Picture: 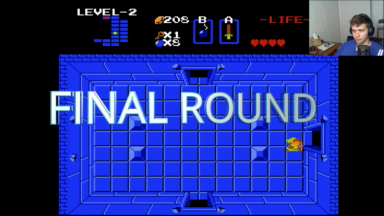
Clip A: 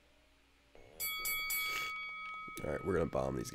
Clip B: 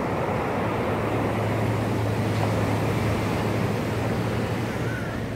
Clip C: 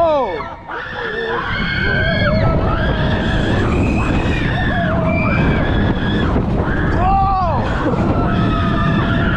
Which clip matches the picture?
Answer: A